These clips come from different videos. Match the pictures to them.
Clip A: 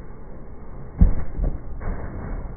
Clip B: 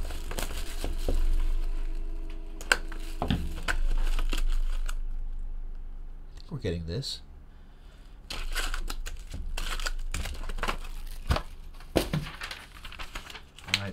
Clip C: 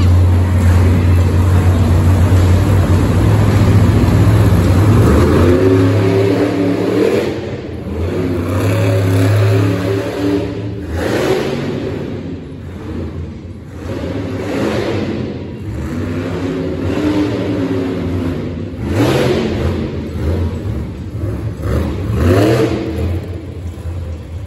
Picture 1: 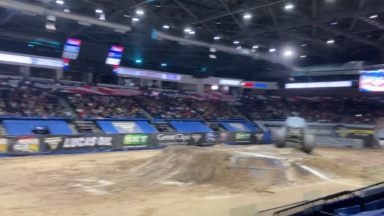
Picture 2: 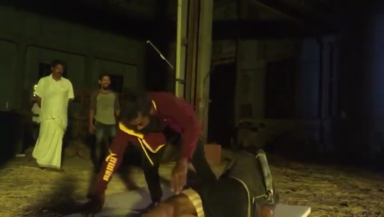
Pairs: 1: C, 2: A